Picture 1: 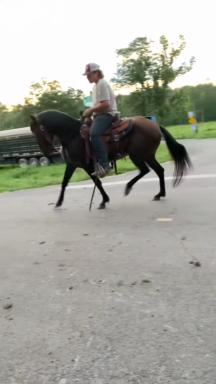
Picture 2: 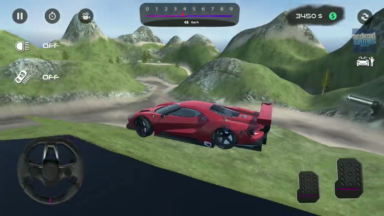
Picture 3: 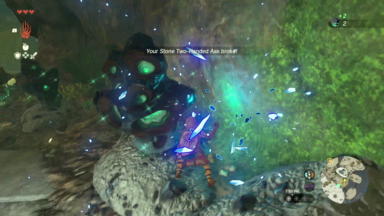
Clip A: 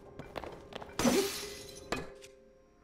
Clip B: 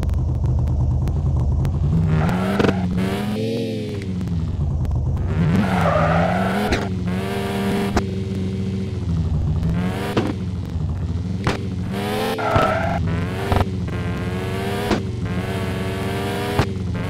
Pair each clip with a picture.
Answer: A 3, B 2